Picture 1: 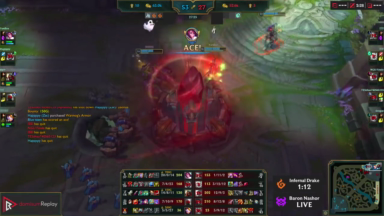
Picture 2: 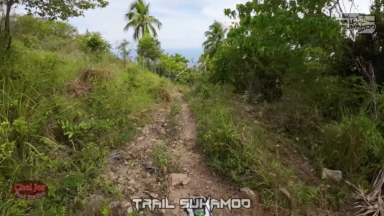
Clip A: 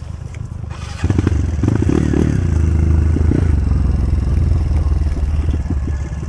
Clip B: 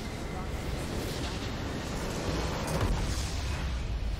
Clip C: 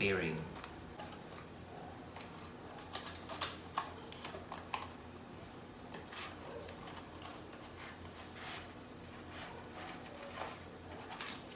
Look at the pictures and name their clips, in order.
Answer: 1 B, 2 A